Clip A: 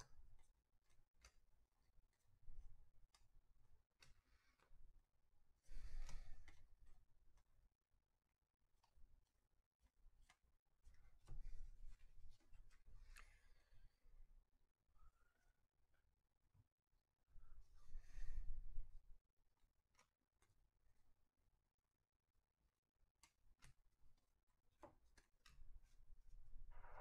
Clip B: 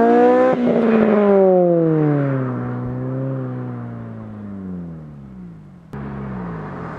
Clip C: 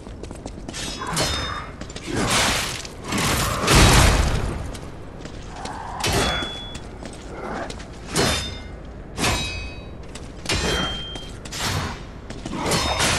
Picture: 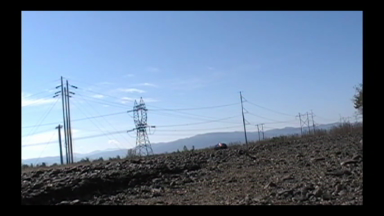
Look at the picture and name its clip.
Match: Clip B